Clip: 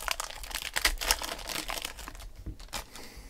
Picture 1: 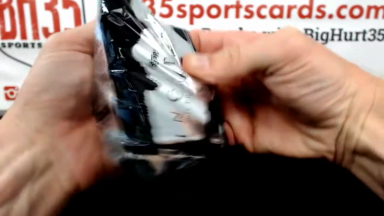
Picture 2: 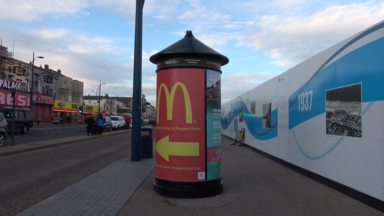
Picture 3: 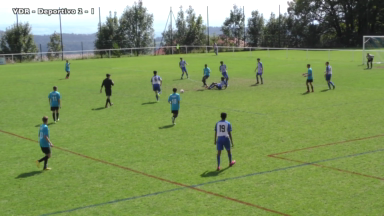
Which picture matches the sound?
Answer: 1